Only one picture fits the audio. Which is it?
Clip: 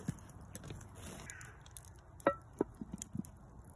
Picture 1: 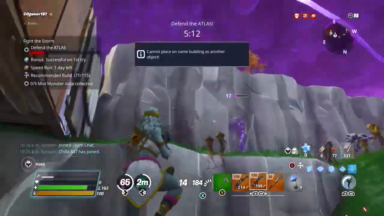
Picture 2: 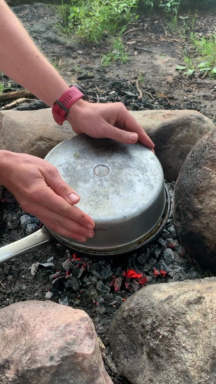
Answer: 2